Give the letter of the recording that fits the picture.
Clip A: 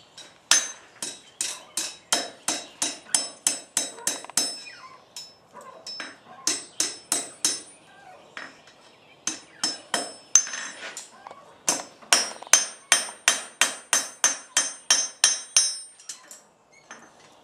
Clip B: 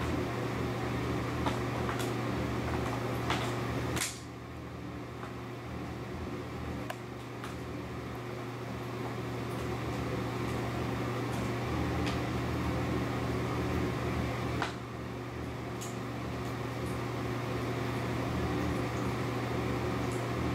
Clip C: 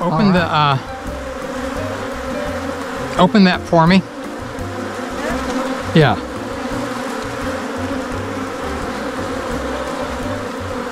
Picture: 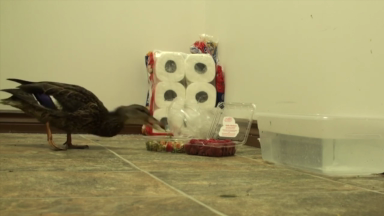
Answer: B